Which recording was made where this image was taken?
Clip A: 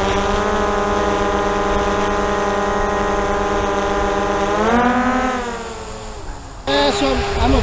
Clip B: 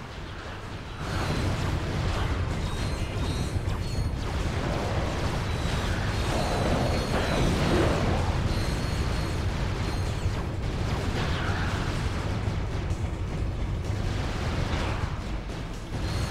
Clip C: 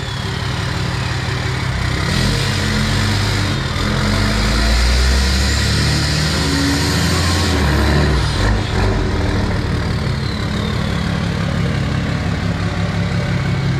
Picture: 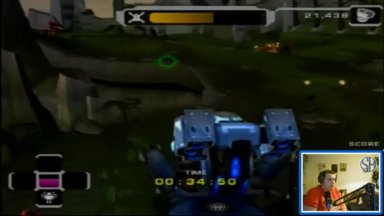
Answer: B